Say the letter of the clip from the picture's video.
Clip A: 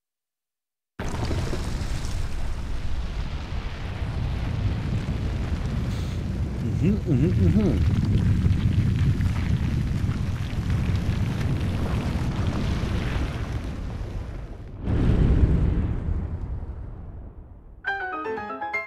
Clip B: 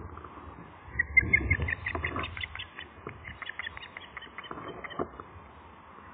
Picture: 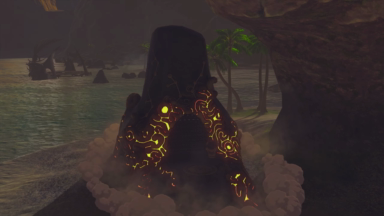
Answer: A